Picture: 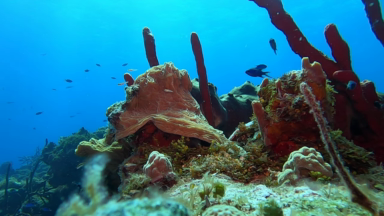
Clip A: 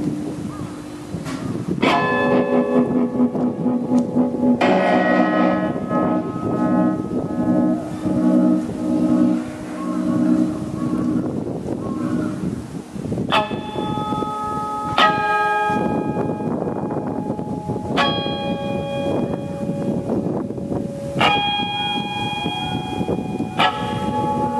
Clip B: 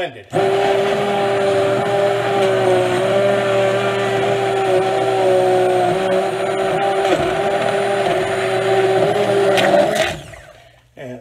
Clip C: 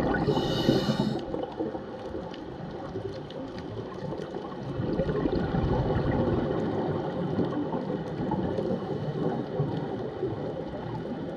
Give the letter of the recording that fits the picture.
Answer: C